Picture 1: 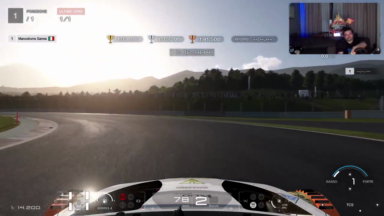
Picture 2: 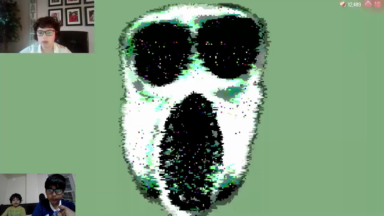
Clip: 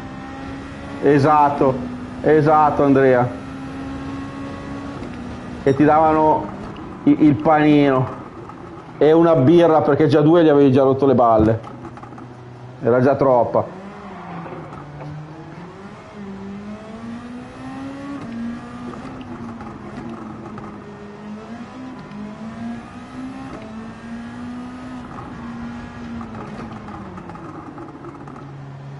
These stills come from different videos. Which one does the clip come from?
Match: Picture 1